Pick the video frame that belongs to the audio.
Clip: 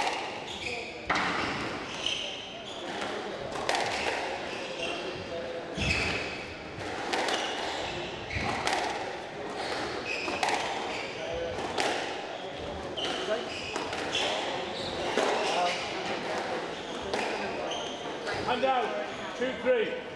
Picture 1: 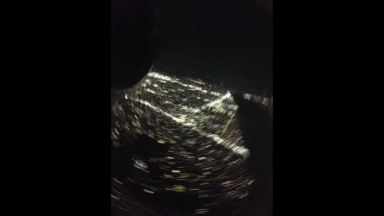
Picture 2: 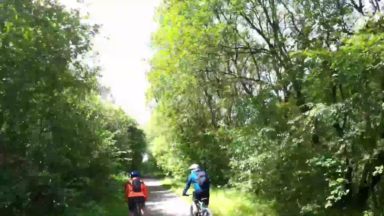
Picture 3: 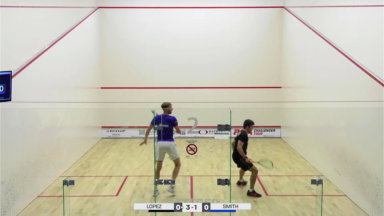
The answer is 3